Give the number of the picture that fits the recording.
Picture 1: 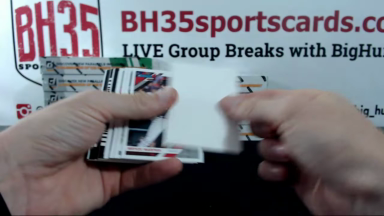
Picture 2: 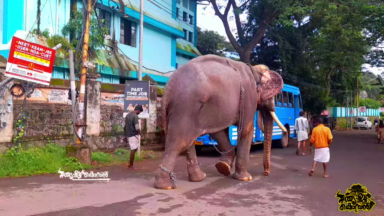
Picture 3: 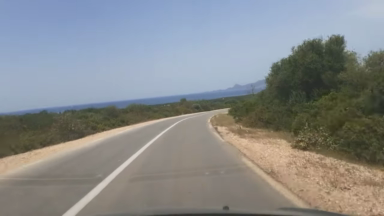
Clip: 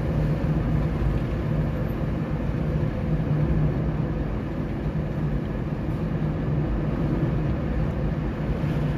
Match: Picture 3